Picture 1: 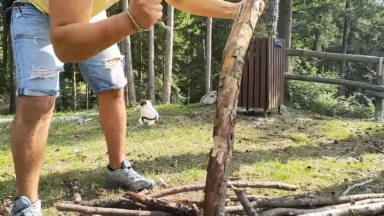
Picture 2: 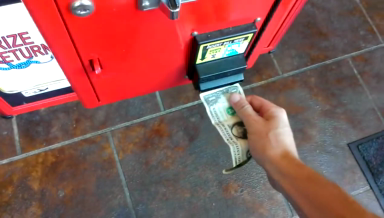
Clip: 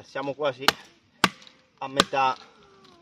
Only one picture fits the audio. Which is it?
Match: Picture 1